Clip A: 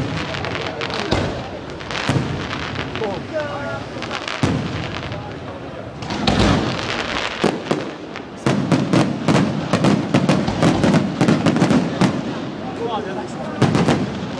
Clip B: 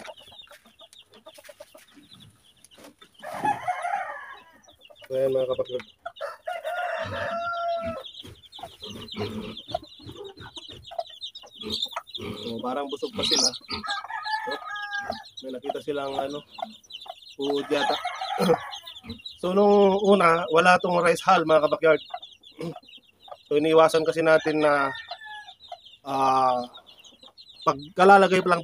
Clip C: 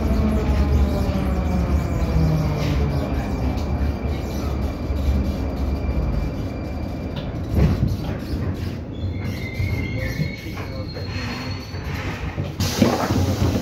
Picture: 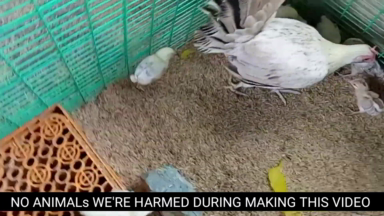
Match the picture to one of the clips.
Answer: B